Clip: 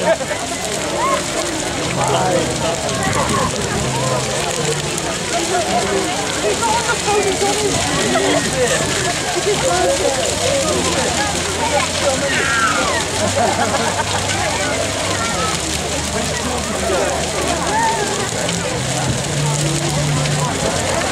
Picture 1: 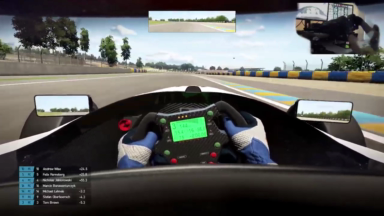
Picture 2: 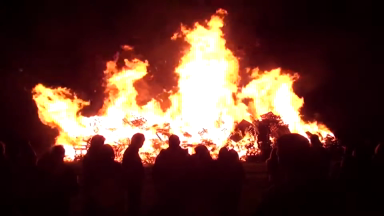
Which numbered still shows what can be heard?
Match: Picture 2